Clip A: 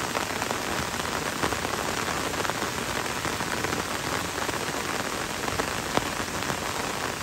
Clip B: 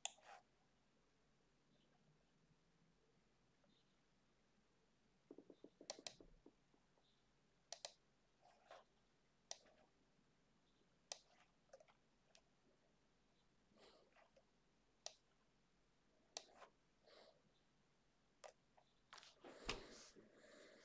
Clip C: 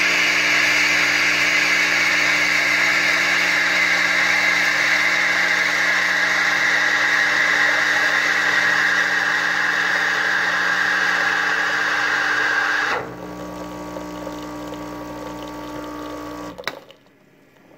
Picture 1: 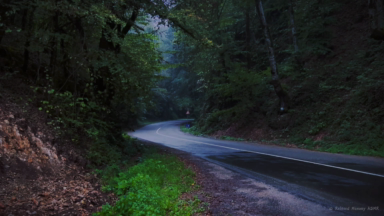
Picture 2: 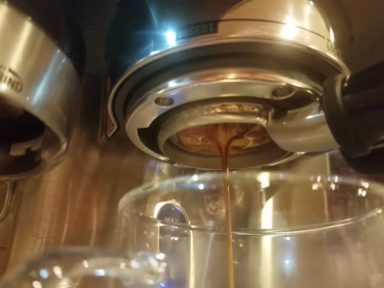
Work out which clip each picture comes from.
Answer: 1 A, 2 C